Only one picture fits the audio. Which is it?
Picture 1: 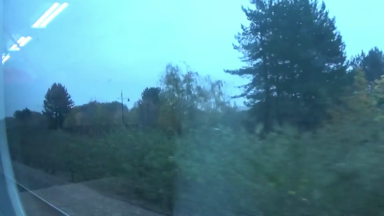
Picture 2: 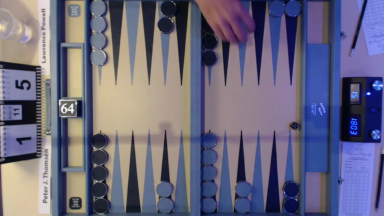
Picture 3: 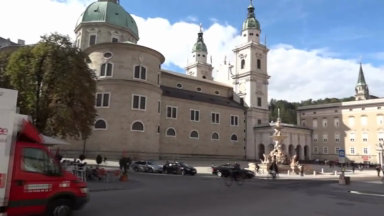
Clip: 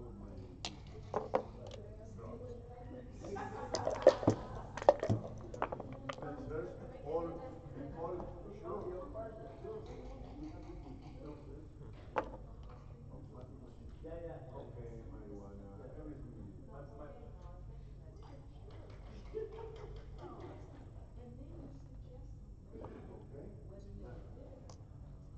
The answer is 2